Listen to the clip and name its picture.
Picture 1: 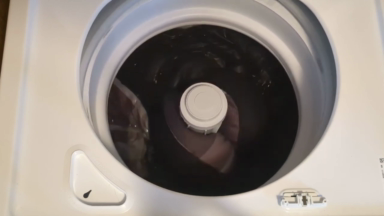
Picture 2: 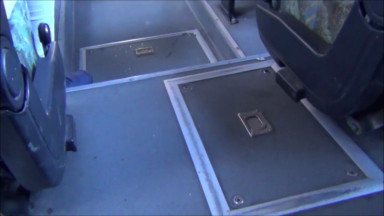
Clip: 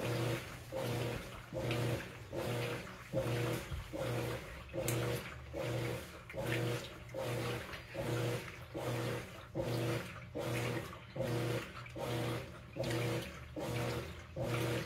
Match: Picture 1